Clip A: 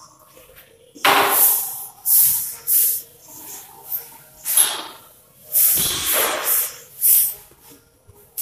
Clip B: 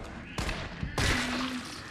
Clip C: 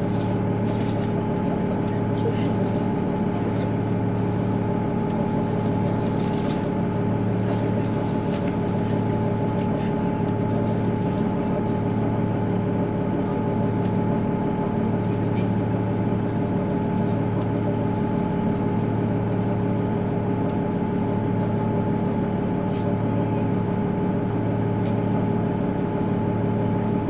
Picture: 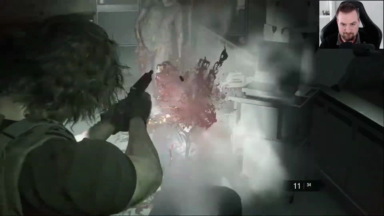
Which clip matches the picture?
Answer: B